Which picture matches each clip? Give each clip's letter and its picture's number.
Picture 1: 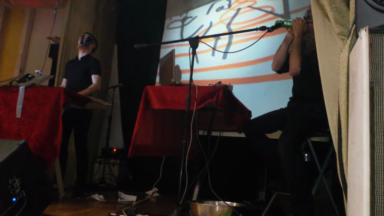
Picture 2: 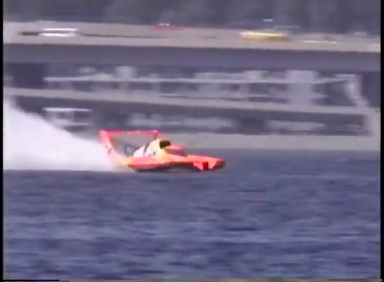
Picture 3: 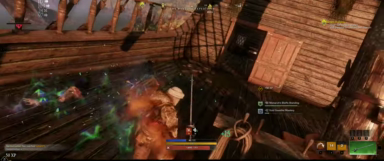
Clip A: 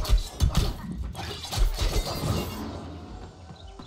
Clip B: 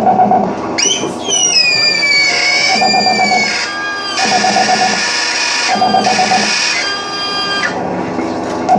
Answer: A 3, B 1